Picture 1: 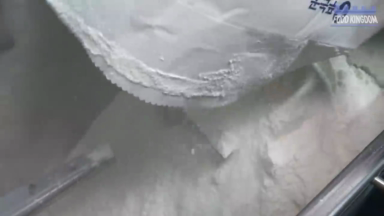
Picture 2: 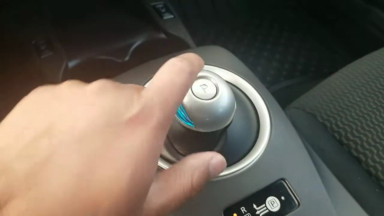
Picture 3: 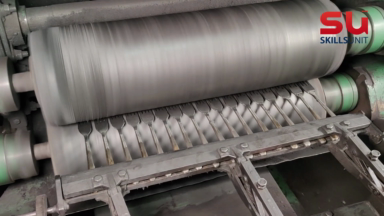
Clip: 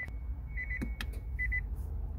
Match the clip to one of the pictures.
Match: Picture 2